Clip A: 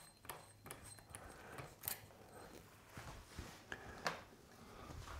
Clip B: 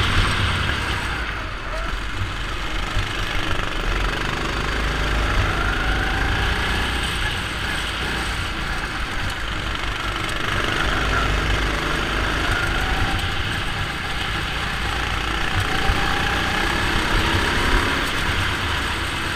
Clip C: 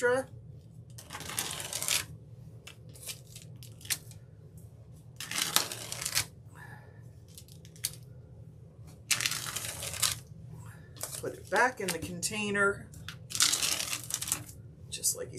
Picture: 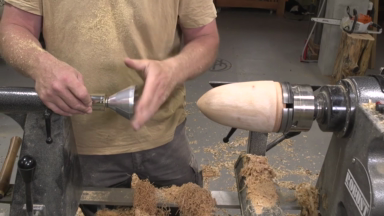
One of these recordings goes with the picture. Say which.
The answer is A